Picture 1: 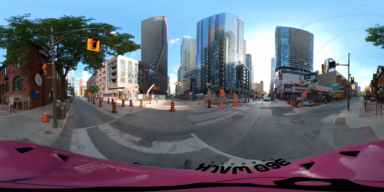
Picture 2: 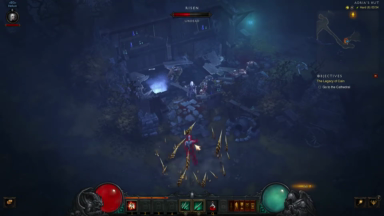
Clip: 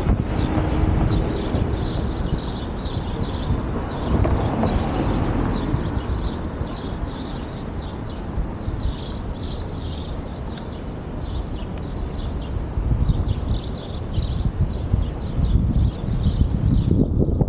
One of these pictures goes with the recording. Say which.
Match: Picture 1